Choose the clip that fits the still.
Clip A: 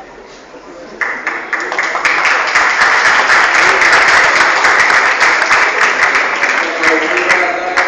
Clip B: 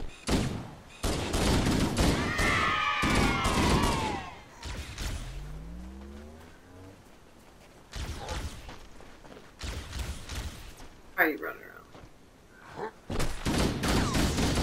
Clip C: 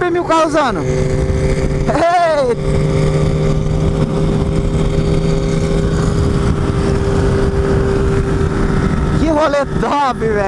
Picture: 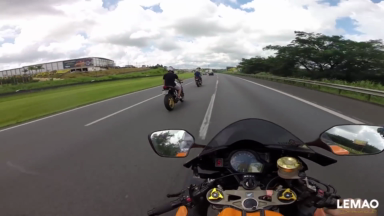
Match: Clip C